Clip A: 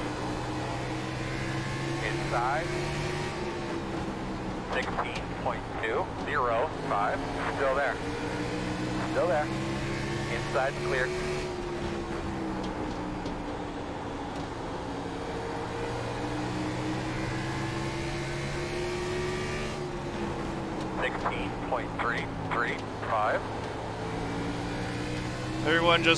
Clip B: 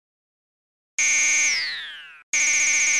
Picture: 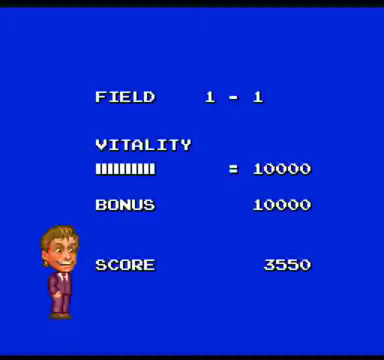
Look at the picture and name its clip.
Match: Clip B